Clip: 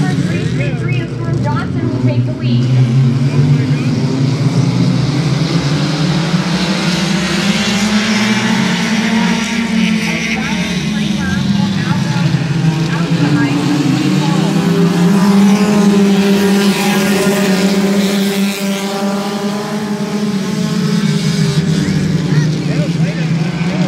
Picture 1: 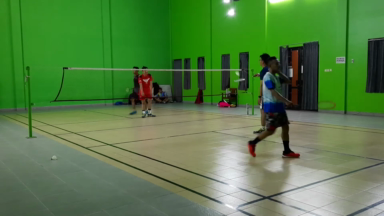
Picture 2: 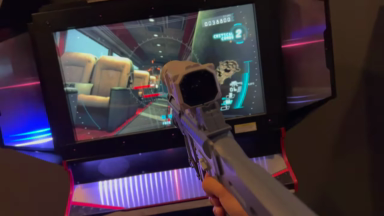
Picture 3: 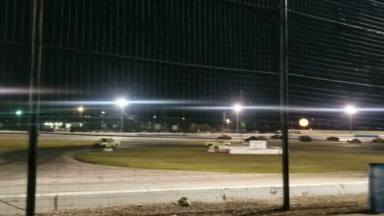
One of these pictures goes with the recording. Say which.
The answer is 3